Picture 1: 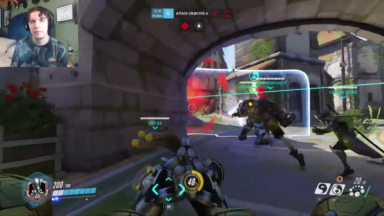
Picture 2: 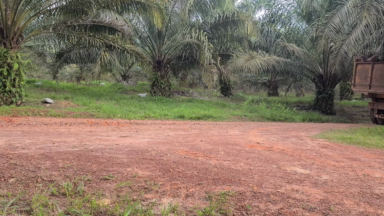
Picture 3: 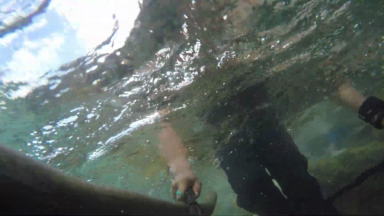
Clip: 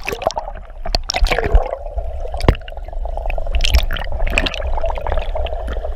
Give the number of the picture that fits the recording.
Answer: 3